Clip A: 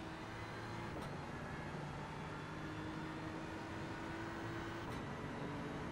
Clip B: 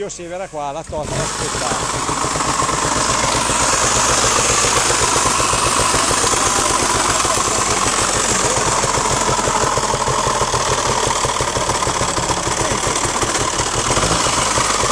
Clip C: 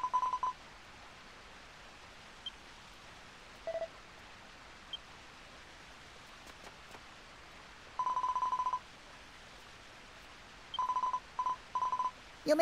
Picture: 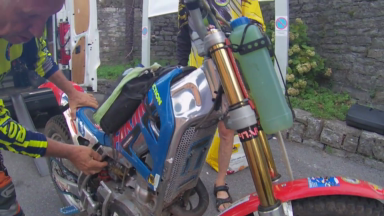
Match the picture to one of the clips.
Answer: B